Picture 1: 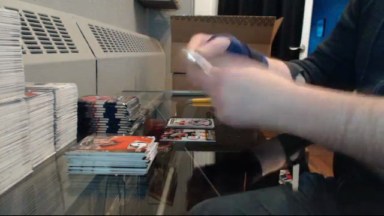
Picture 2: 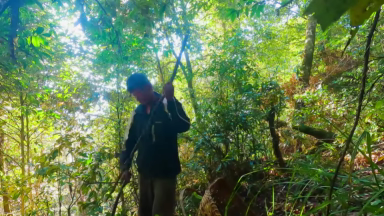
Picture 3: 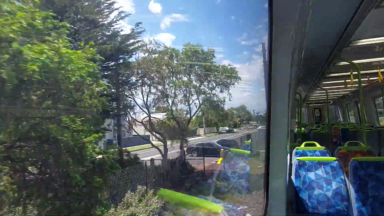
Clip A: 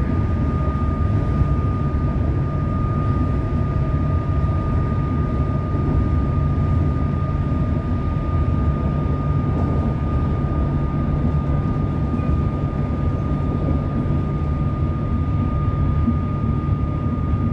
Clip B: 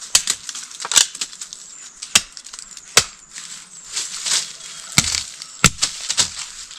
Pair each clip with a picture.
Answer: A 3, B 2